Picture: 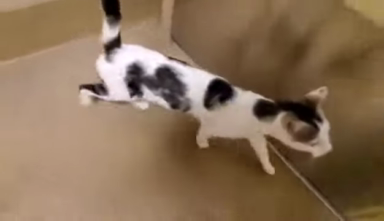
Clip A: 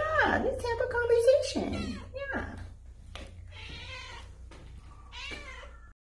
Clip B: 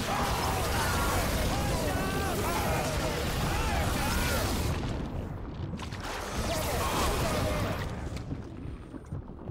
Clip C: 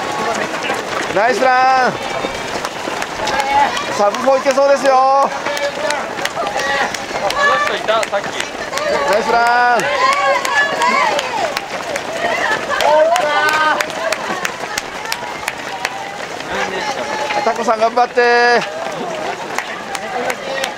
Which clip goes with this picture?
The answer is A